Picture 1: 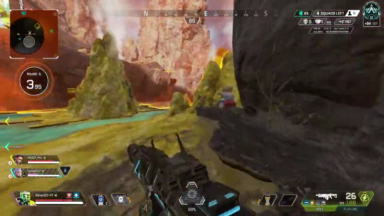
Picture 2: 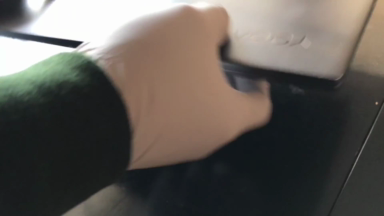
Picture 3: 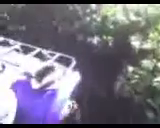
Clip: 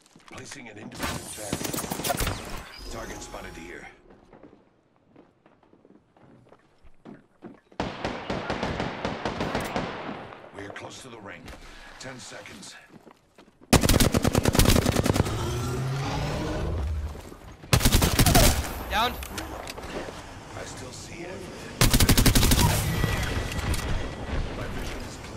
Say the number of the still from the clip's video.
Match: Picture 1